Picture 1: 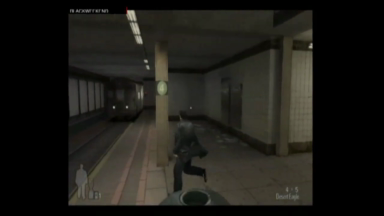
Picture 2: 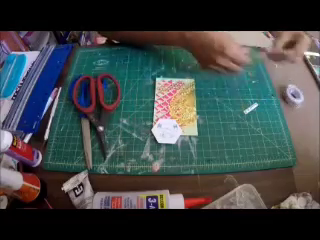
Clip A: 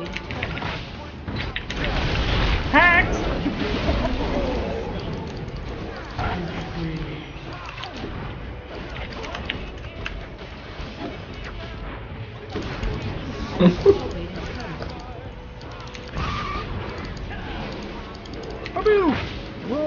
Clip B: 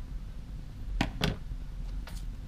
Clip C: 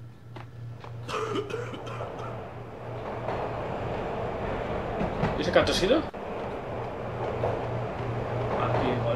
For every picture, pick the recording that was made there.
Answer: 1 C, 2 B